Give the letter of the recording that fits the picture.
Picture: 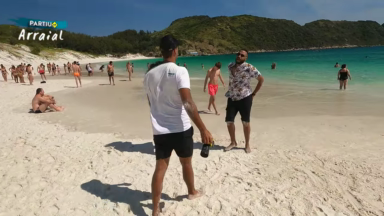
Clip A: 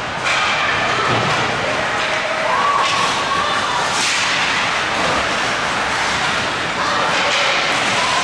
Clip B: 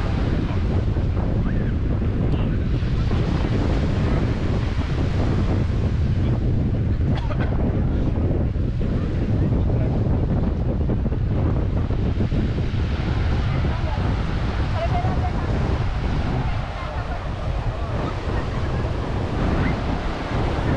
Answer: B